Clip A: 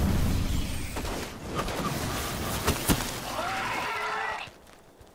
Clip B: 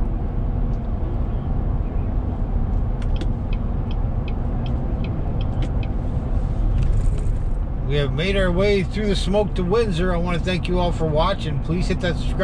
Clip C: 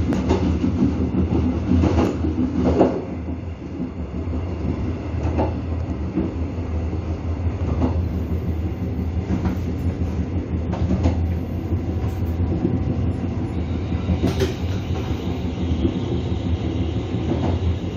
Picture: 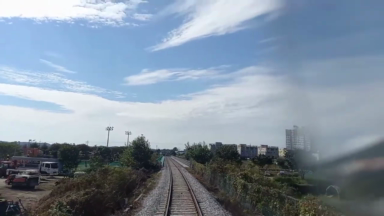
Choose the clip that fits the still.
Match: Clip C